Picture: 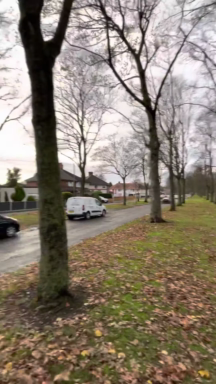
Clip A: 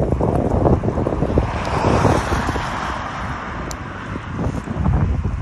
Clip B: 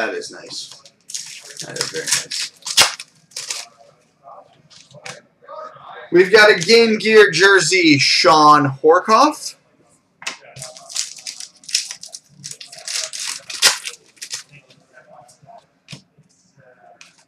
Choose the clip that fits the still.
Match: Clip A